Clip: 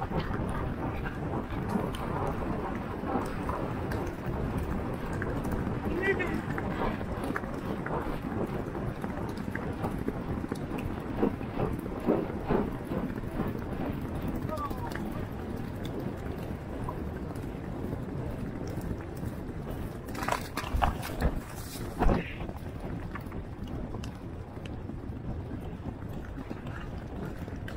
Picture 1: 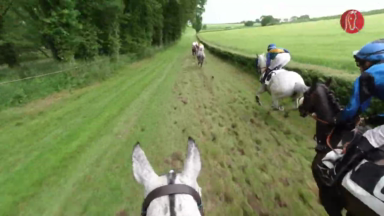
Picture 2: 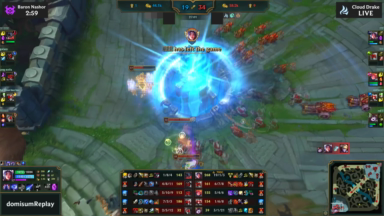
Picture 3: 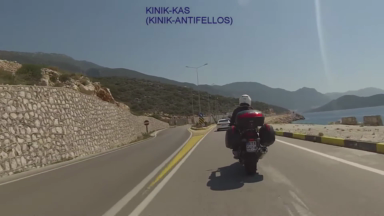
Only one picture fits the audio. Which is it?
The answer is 1